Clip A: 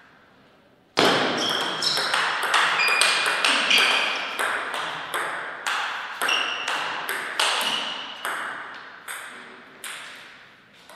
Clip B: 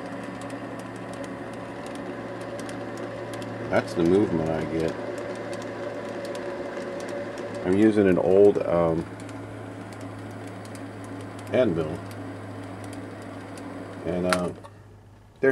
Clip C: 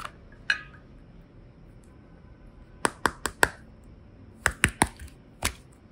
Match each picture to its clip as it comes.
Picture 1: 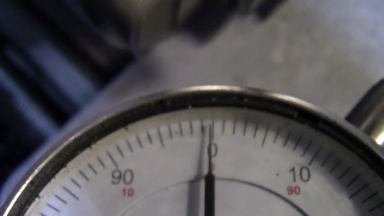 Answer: B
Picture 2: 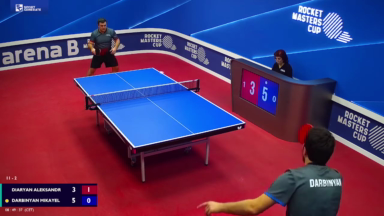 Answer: A